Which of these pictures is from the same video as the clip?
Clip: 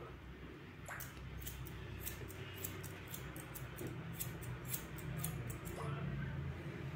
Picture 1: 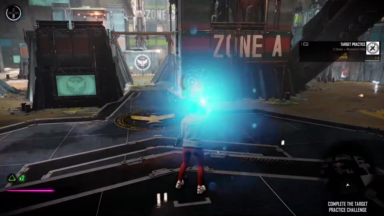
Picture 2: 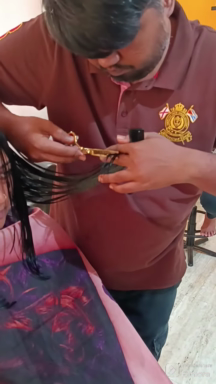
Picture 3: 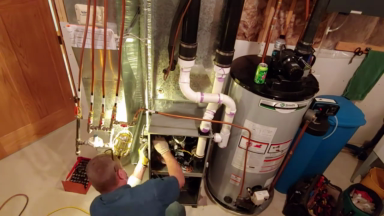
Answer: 2